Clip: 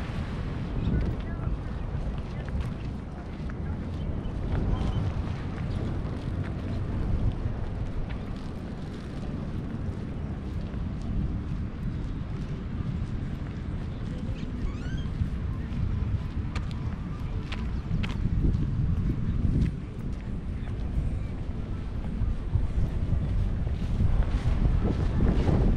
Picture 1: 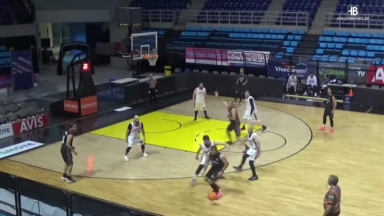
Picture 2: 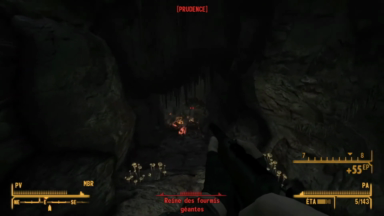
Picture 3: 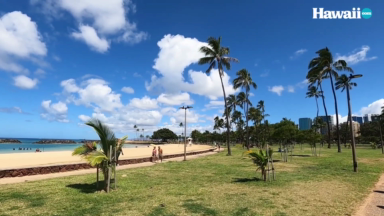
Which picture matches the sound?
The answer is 3